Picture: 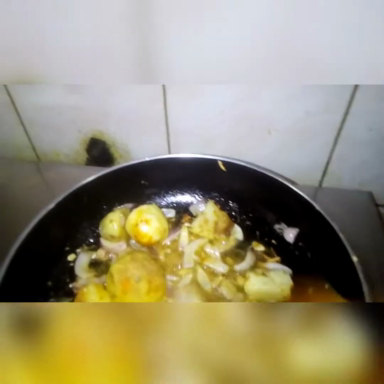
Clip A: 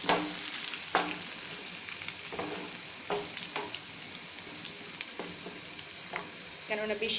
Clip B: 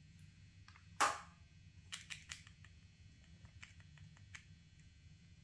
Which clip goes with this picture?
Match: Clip A